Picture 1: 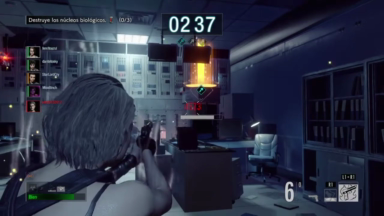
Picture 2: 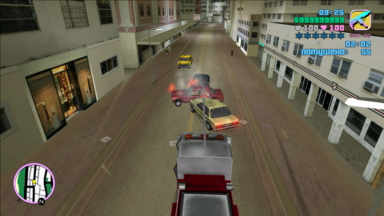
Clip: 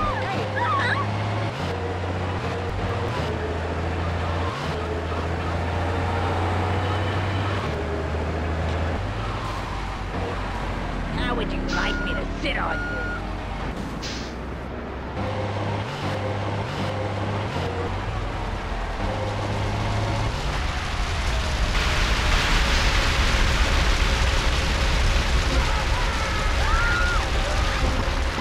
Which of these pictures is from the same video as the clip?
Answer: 2